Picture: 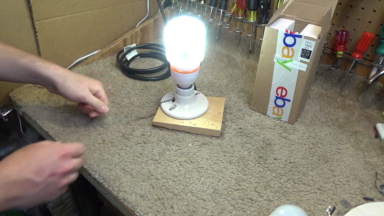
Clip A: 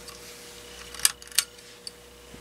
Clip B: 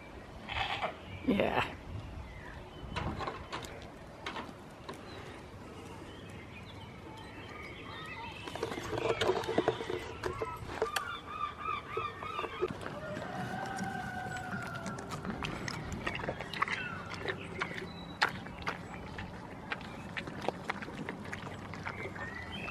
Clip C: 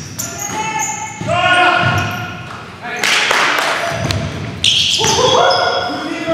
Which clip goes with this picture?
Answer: A